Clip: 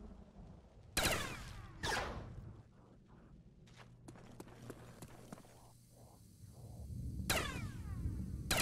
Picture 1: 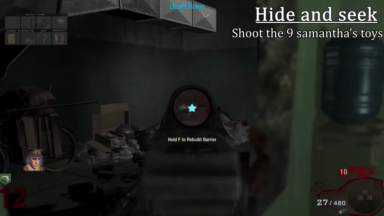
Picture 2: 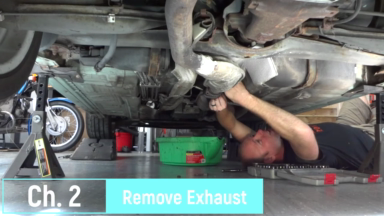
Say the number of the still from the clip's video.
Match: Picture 1